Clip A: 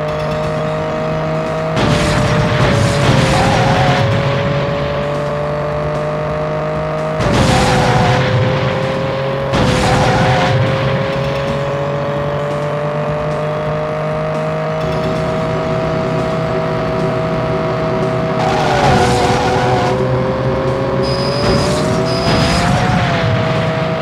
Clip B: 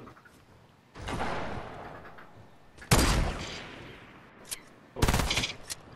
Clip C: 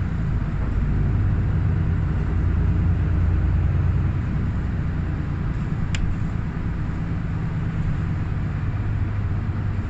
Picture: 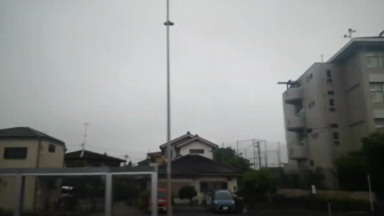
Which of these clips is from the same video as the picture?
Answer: C